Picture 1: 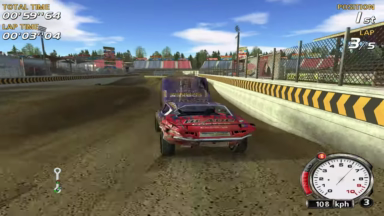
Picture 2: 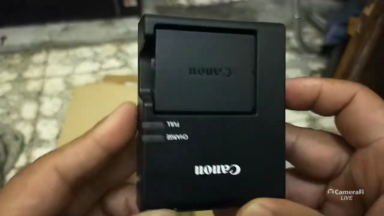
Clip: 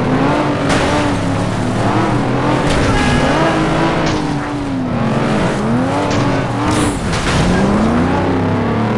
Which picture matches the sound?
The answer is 1